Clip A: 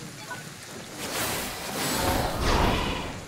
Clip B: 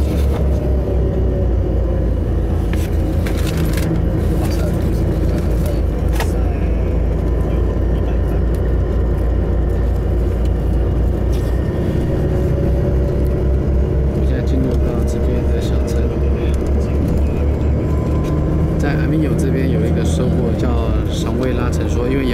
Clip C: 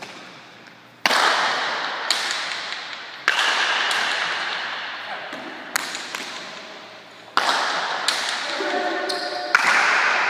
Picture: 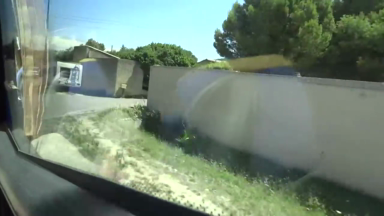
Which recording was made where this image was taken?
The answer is B